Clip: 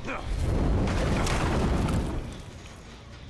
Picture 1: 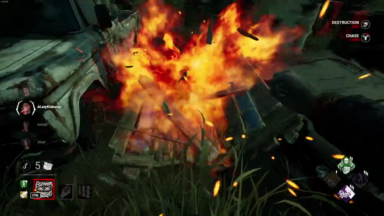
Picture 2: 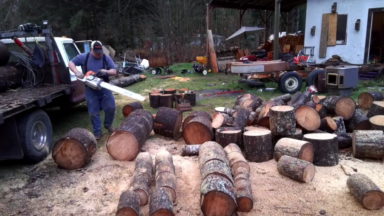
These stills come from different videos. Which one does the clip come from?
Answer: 1